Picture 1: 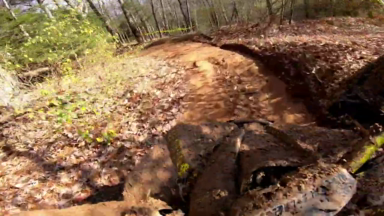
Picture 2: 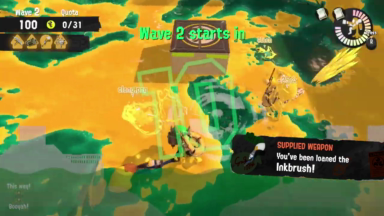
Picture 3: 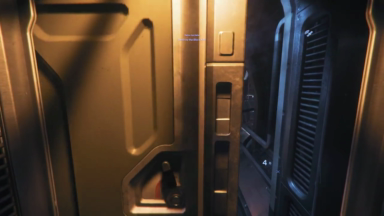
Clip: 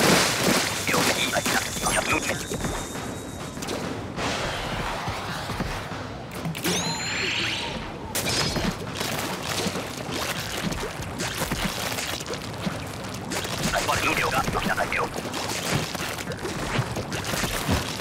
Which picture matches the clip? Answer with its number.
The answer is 2